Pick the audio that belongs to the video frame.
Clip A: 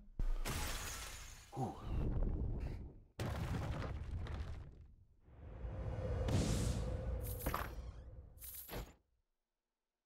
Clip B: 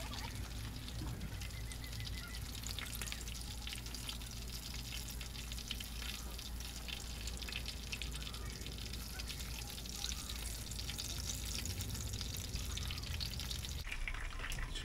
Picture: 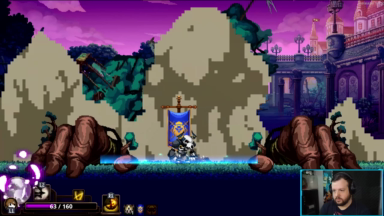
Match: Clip A